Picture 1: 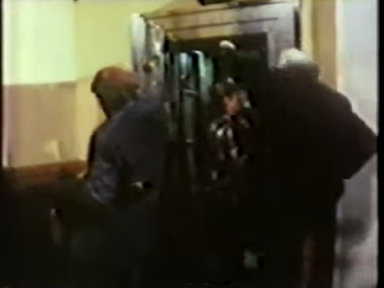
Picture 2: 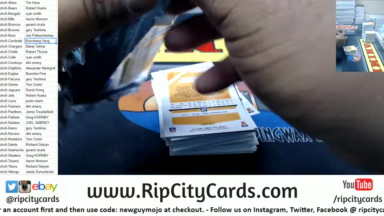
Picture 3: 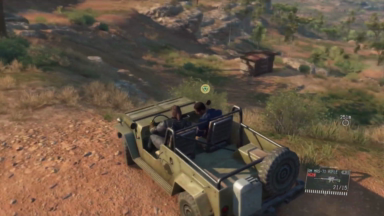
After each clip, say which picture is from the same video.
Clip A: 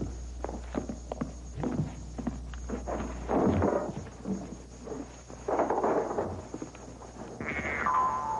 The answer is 1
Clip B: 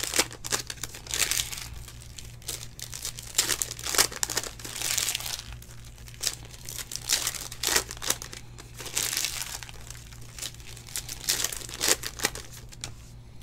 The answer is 2